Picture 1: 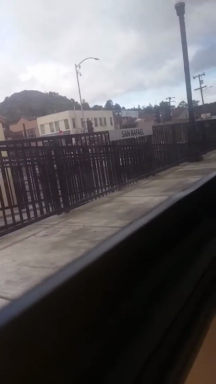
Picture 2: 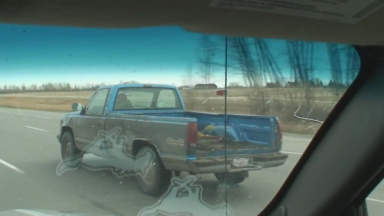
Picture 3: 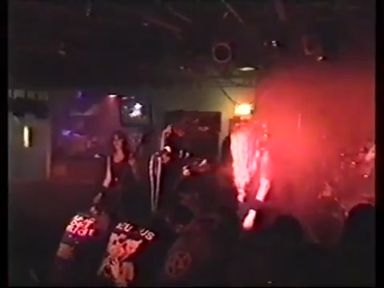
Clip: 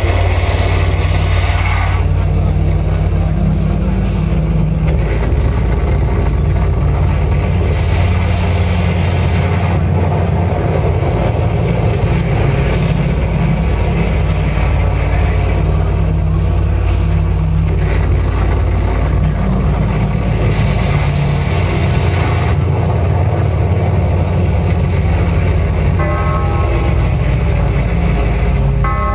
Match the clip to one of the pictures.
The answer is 3